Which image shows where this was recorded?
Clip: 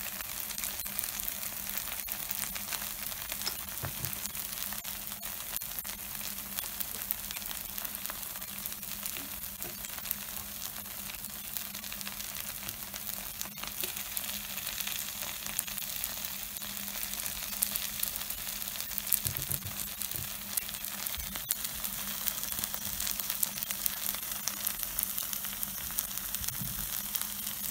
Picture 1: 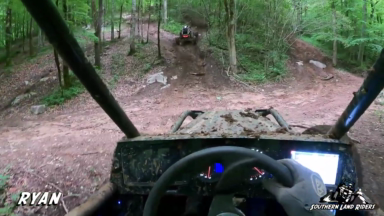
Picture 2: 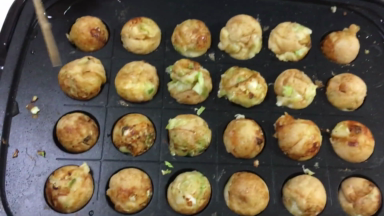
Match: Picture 2